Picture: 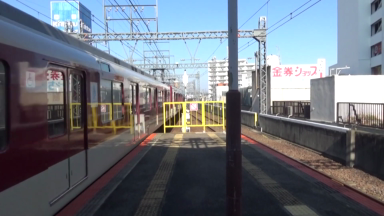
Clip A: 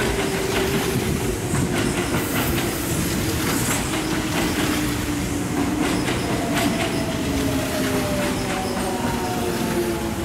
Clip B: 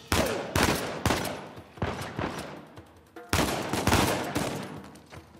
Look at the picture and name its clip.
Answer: A